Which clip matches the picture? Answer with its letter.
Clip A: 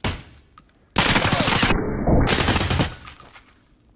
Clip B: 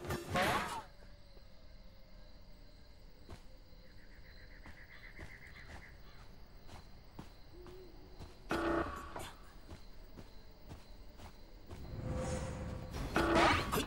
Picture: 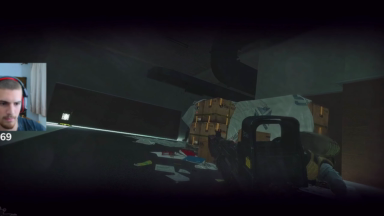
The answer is A